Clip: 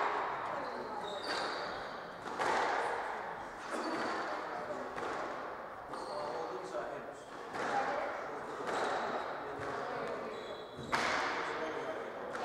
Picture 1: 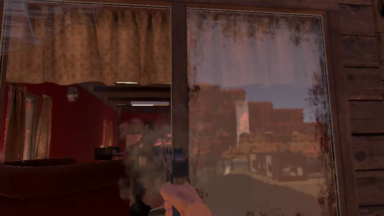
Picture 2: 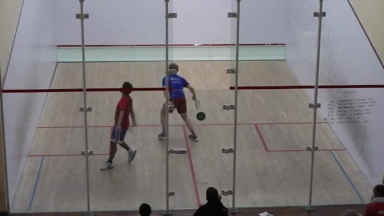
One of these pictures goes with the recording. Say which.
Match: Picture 2